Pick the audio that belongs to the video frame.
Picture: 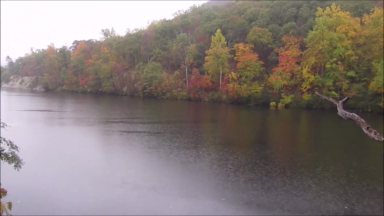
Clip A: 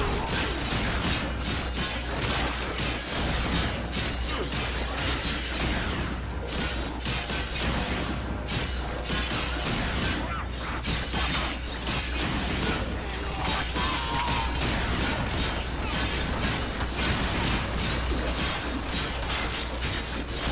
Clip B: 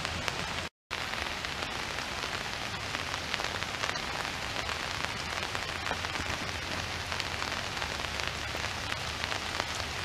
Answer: B